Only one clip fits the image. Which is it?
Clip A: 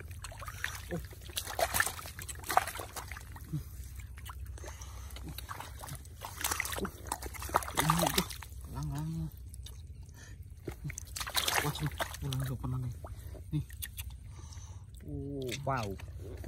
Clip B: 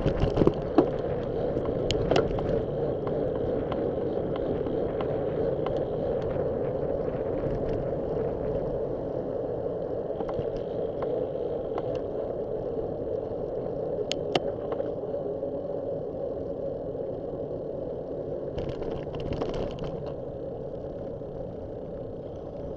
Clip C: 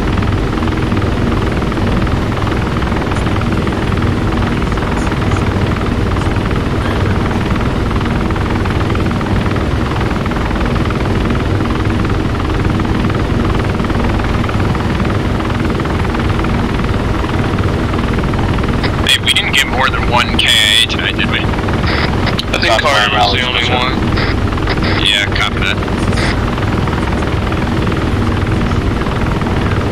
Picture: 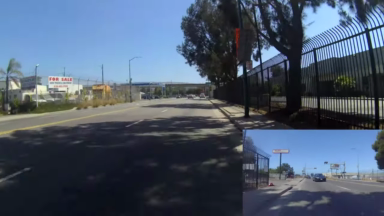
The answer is B